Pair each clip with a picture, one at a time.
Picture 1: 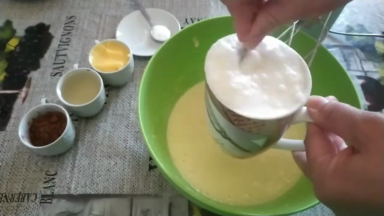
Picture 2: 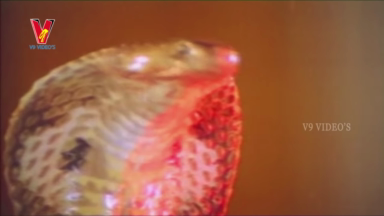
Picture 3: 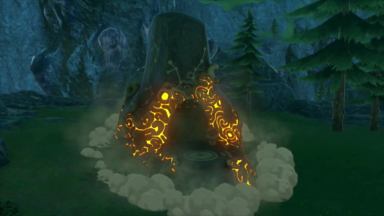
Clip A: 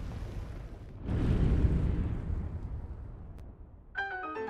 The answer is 3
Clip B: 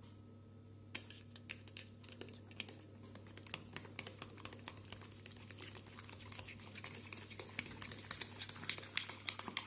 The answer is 1